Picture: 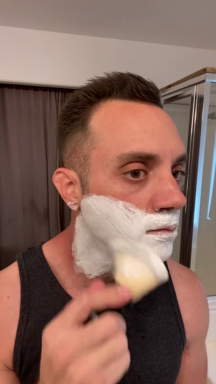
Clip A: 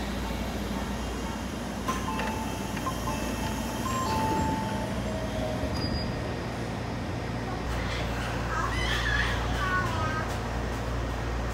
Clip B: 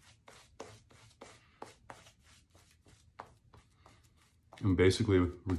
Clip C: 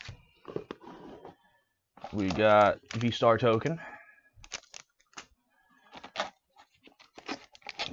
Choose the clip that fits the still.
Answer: B